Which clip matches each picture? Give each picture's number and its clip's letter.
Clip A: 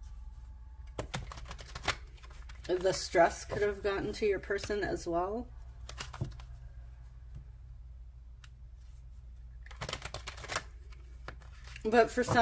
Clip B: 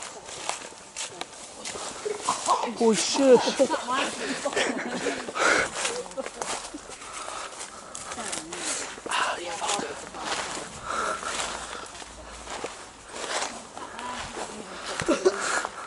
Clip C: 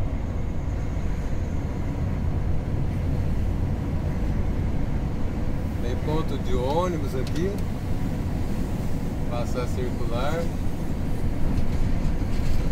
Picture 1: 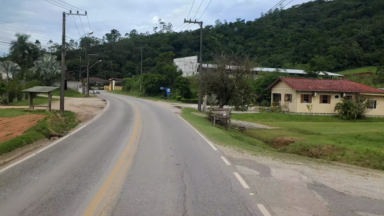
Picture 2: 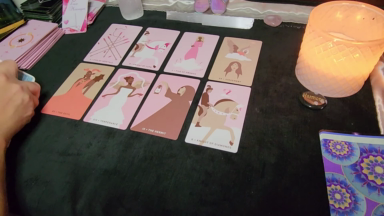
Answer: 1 C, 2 A